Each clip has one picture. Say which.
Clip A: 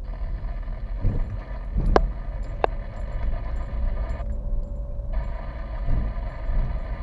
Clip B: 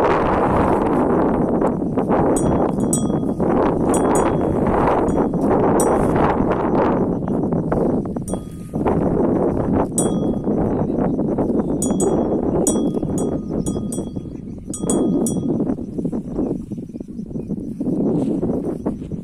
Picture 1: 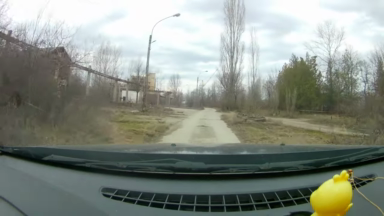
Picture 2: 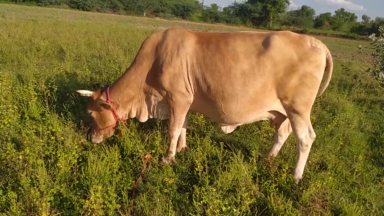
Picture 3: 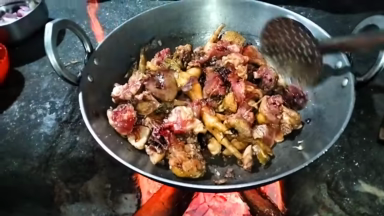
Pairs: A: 1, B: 2